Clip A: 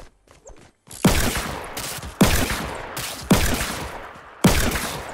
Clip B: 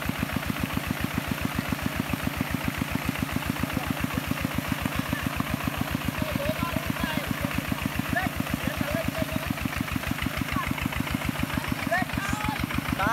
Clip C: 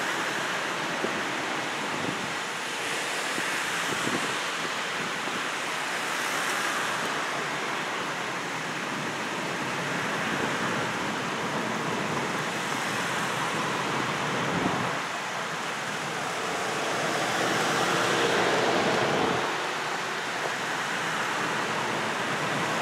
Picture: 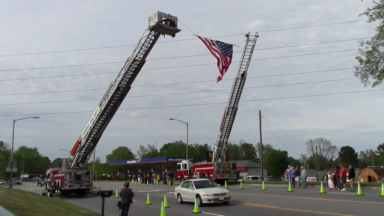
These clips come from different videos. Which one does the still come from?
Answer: C